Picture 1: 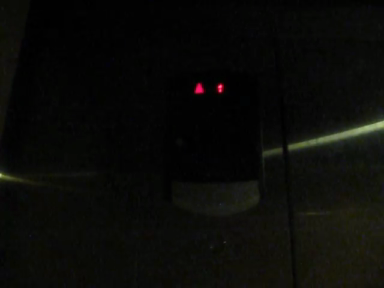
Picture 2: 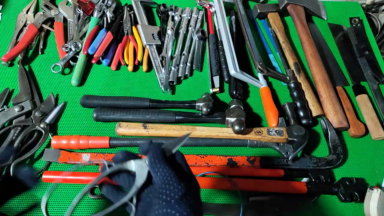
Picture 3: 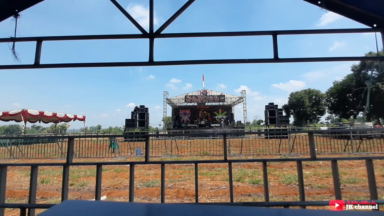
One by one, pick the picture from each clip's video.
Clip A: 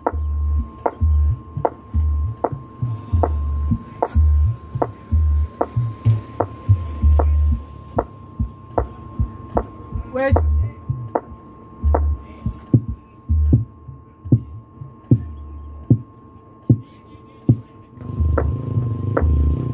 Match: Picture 3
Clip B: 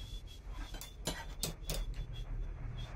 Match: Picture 2